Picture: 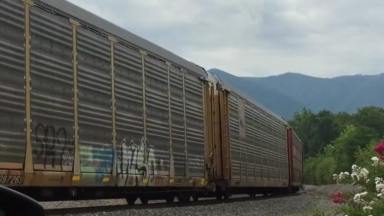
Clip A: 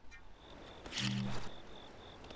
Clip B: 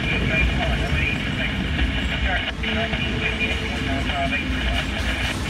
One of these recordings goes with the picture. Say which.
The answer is B